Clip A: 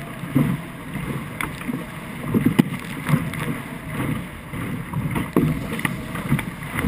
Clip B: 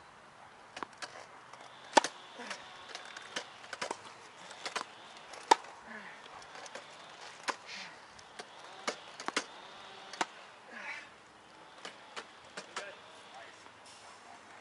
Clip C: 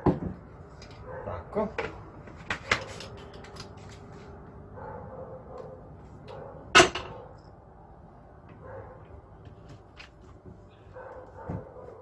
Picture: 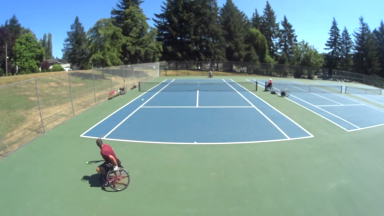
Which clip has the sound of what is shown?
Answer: B